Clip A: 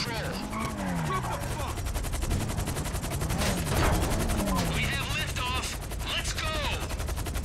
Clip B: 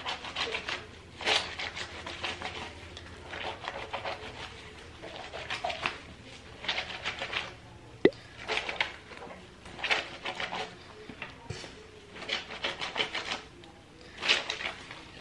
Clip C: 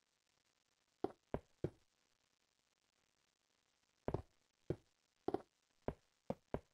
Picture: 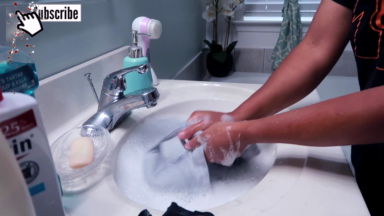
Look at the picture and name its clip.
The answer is B